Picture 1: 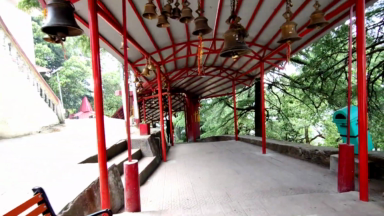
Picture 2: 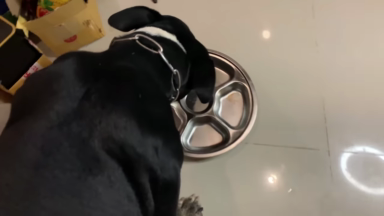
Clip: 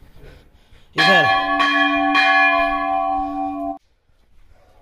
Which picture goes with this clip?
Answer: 1